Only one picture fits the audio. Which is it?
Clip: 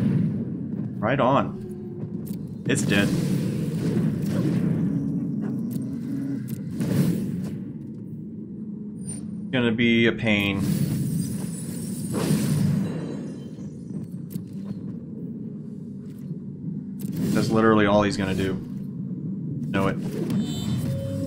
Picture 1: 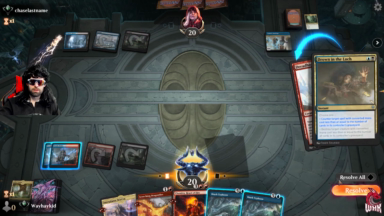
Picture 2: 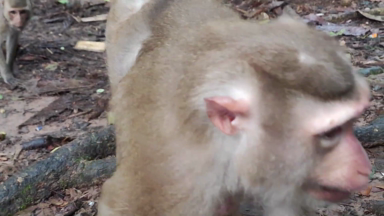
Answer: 1